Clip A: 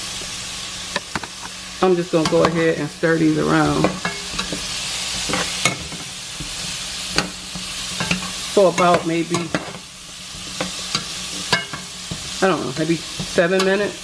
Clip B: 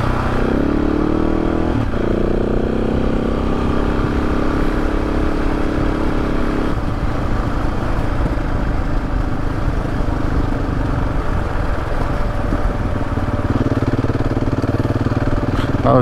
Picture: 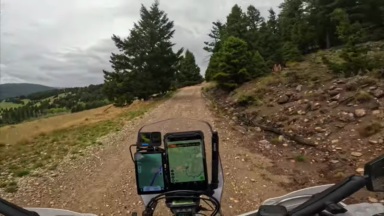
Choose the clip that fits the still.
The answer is B